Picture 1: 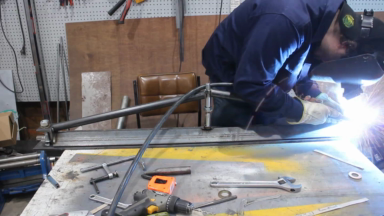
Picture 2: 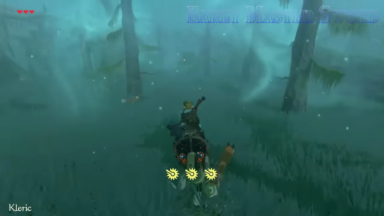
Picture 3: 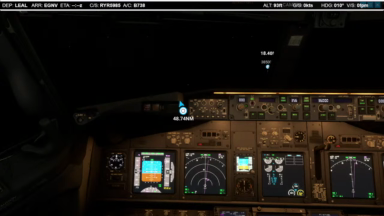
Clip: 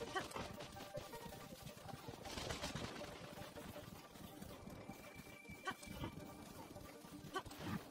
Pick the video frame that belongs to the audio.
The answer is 2